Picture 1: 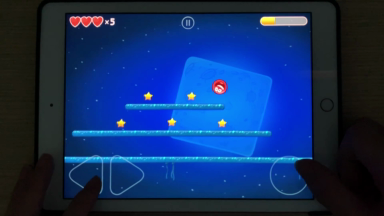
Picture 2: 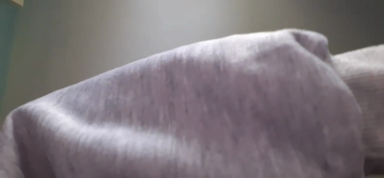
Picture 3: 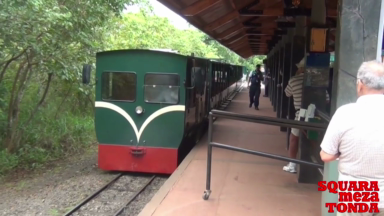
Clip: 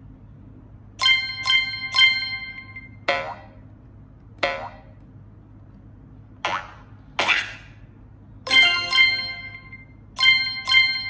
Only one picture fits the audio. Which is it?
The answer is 1